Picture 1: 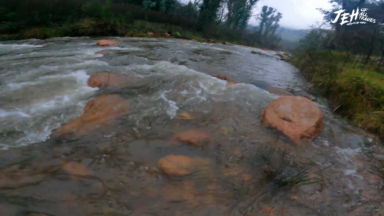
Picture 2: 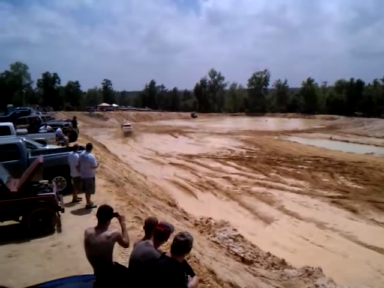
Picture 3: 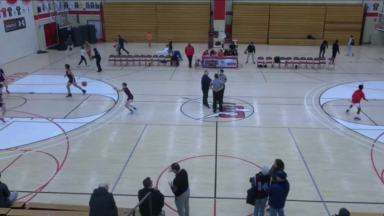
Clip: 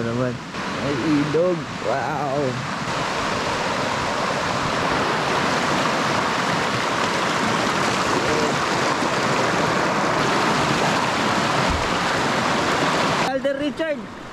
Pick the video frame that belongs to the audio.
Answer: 1